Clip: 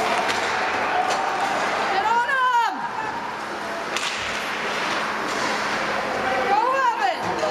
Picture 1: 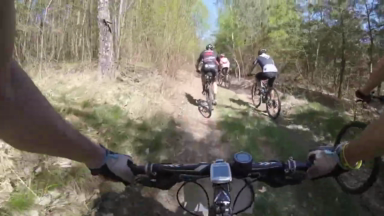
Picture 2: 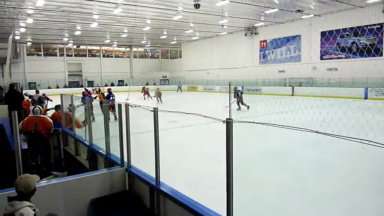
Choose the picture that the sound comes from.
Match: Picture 2